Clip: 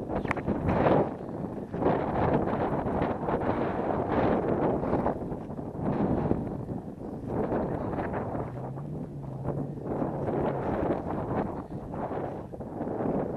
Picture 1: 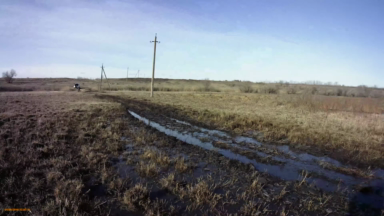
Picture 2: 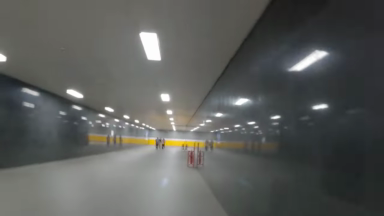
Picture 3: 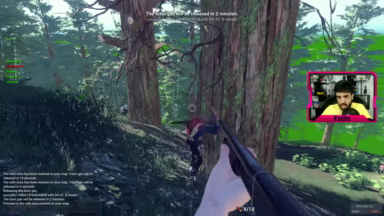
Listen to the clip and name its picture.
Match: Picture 1